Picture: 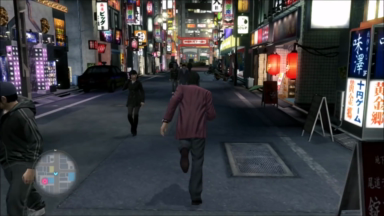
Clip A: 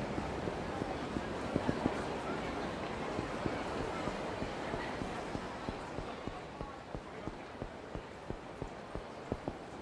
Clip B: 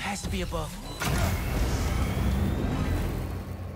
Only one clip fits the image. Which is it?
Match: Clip A